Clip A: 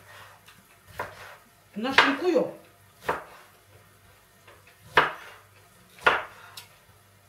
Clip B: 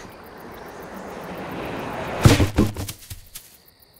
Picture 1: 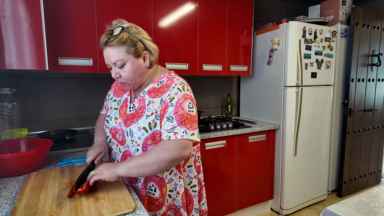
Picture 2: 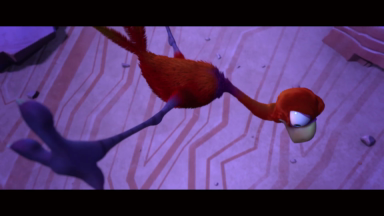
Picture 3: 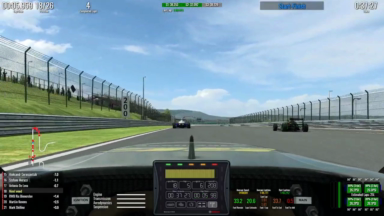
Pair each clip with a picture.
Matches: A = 1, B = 2